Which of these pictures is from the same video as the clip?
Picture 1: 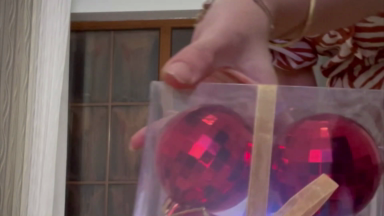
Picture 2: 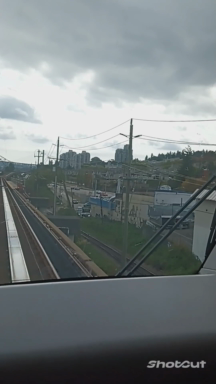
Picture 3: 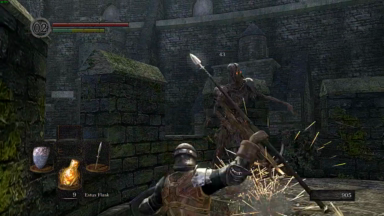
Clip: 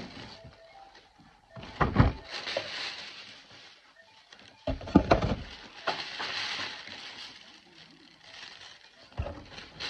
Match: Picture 1